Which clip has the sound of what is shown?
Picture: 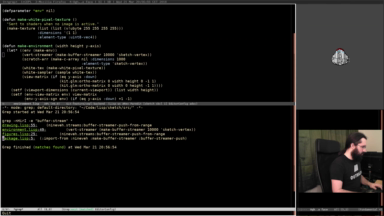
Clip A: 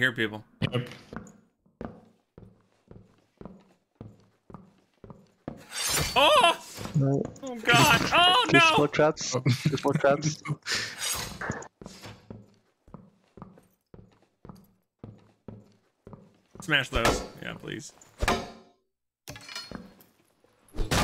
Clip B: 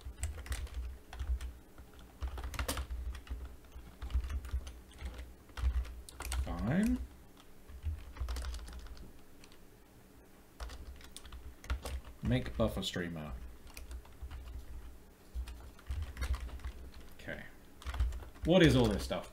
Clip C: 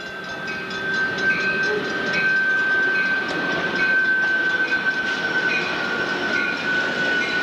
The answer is B